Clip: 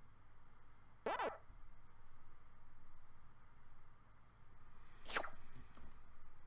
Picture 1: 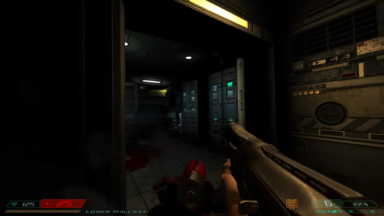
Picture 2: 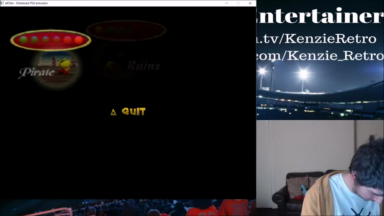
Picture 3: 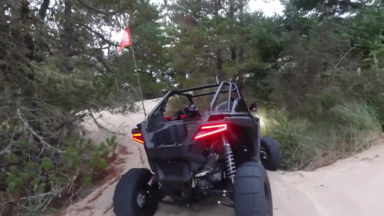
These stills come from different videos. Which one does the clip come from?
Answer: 2